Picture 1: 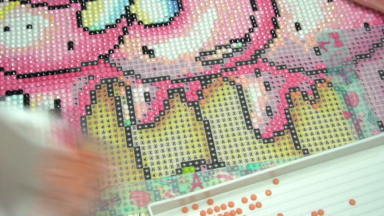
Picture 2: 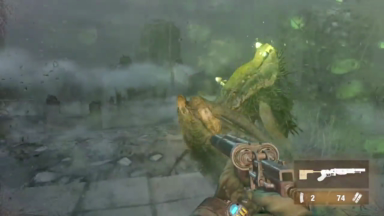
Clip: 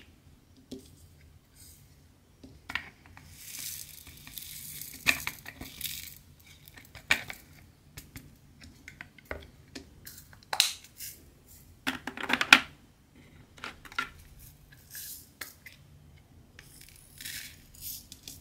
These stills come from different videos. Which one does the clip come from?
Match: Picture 1